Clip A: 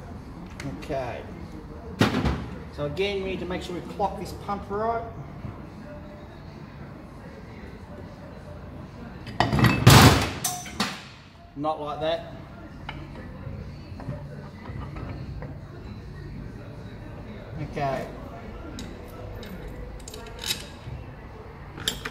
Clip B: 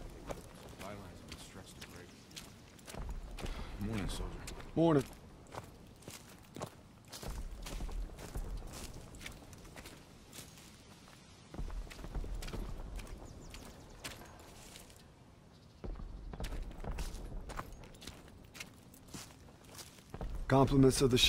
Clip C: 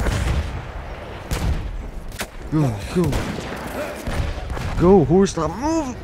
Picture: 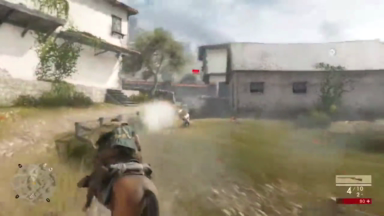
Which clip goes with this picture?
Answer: C